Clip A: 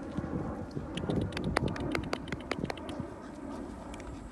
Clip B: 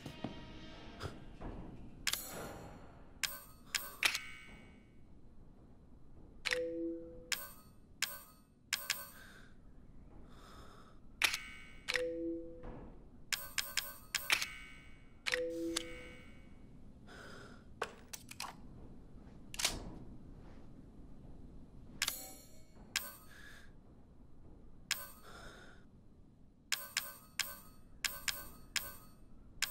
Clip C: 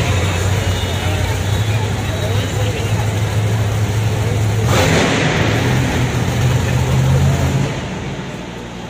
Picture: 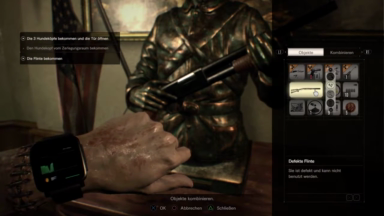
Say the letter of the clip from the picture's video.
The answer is B